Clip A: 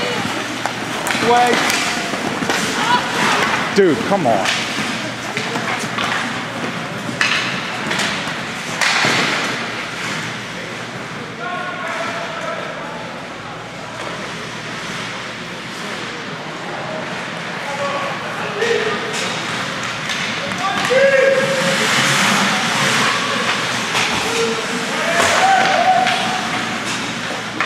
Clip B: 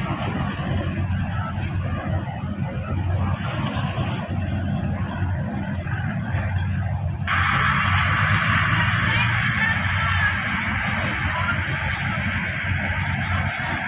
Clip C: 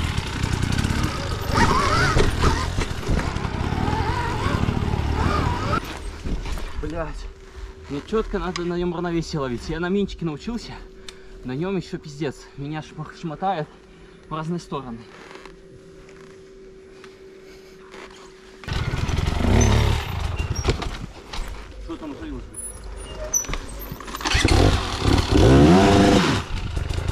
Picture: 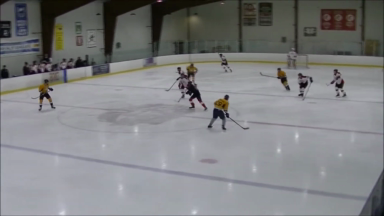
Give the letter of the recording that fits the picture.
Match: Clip A